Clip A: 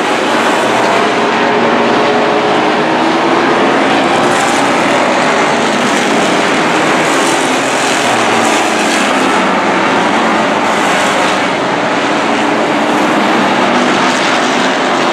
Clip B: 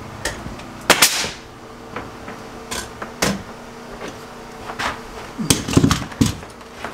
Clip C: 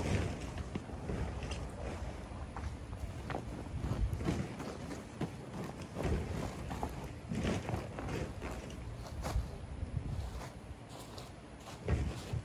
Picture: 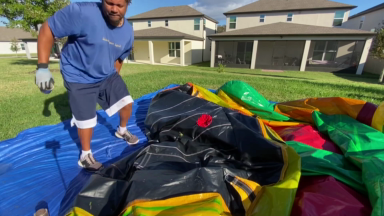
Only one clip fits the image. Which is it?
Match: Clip C